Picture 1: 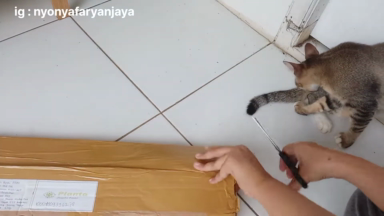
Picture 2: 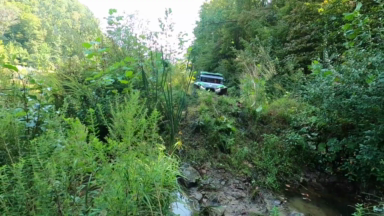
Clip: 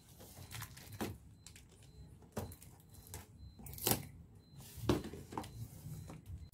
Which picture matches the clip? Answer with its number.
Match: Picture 1